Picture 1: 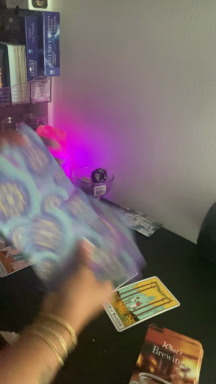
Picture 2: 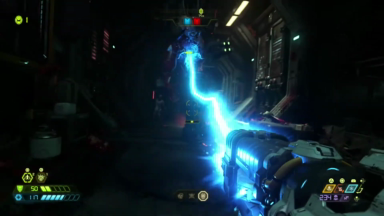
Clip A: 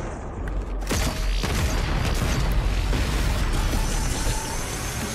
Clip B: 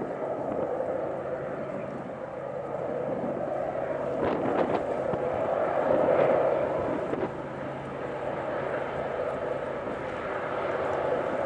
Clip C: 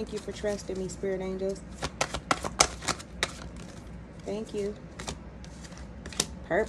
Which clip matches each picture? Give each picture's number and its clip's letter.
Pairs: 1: C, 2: A